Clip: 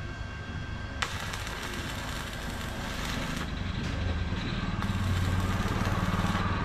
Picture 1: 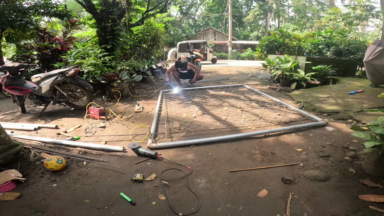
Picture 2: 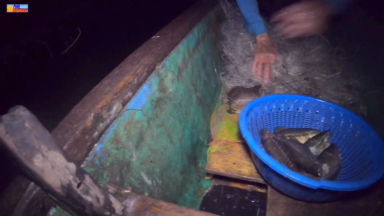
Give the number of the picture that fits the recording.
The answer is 1